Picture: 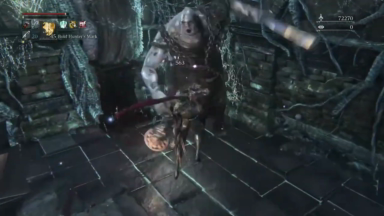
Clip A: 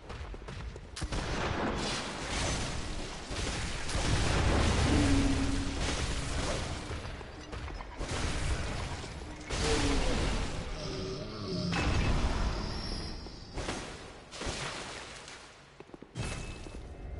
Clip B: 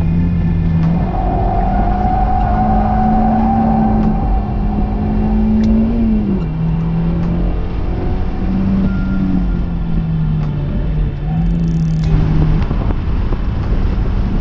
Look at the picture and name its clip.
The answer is A